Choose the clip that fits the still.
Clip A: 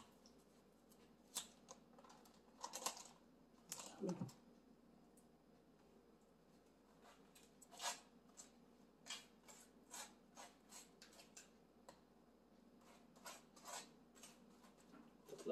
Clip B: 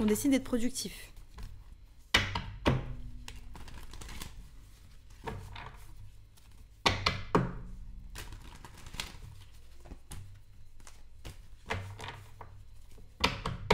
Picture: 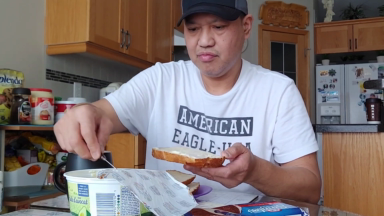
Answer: A